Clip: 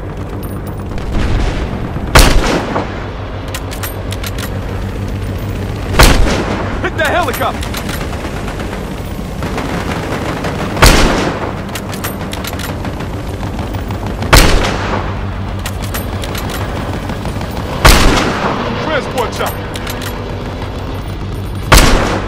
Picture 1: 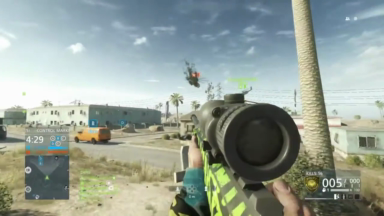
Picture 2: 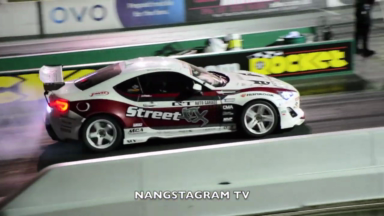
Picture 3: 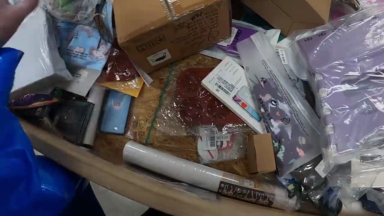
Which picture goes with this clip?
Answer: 1